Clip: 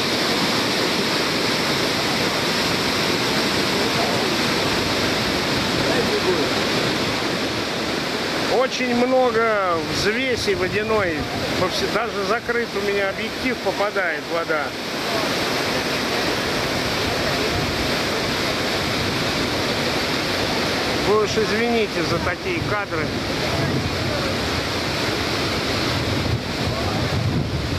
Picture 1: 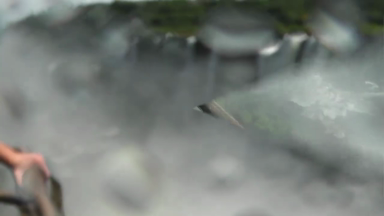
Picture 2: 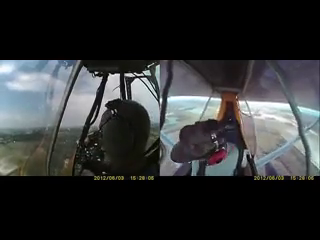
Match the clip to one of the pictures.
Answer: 1